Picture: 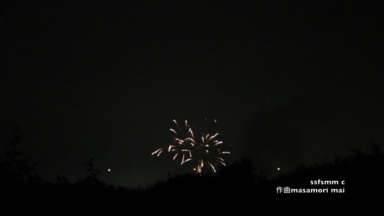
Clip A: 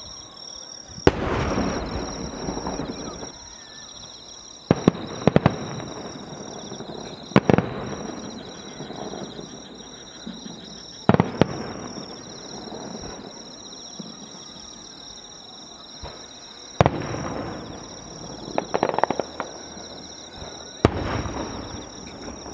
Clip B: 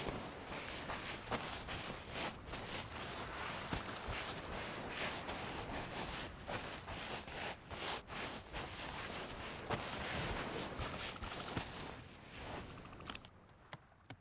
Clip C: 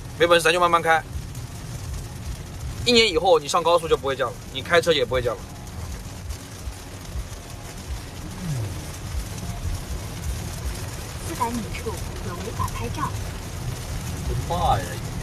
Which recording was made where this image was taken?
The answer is A